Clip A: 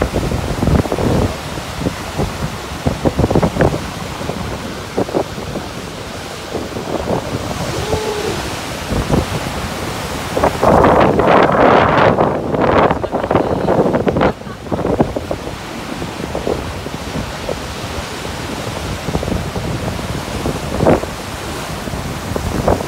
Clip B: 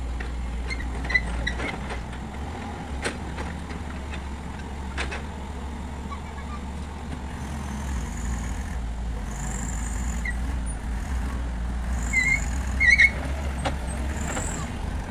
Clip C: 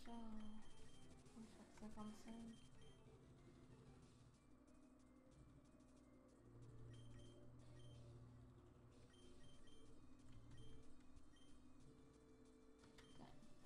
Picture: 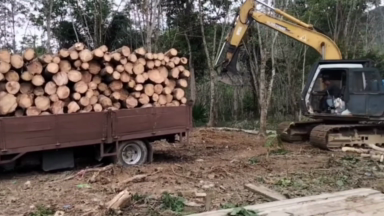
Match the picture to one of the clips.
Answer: B